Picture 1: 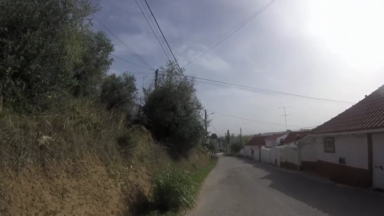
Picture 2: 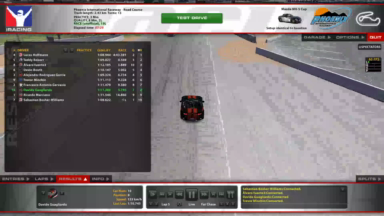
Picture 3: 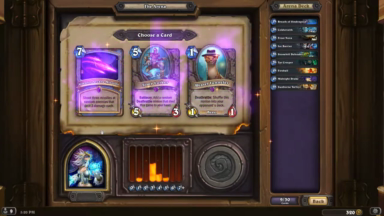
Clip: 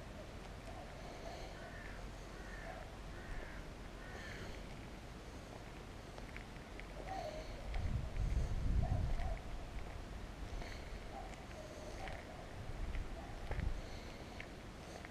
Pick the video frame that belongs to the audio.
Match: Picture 1